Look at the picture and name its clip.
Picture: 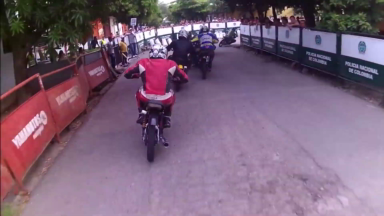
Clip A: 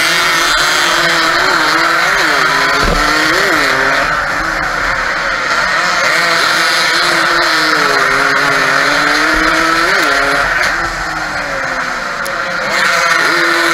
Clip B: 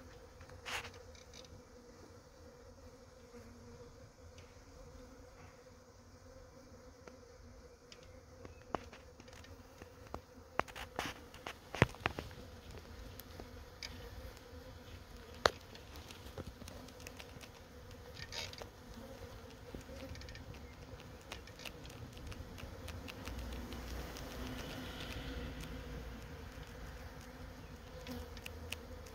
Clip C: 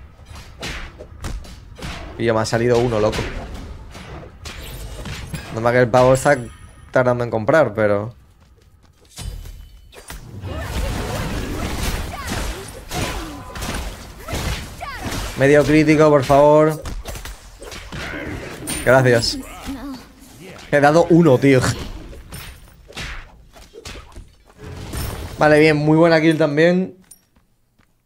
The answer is A